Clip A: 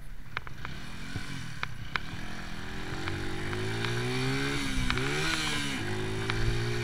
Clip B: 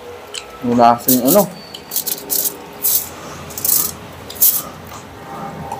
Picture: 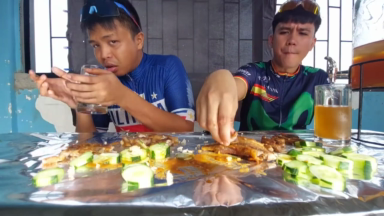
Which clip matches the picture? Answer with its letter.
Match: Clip B